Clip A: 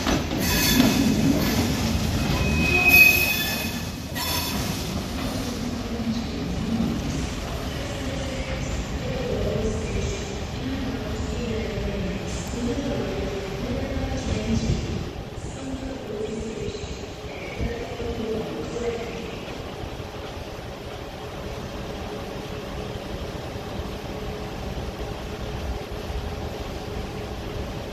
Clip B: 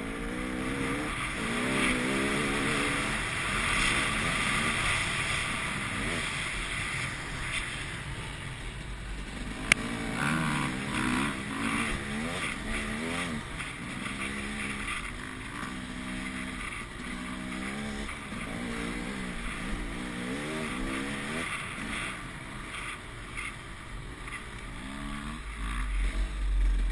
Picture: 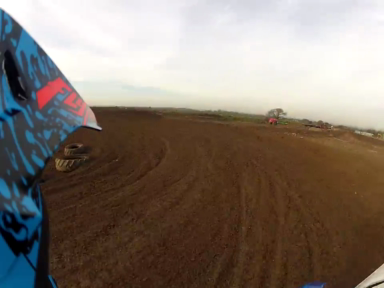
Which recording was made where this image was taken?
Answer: B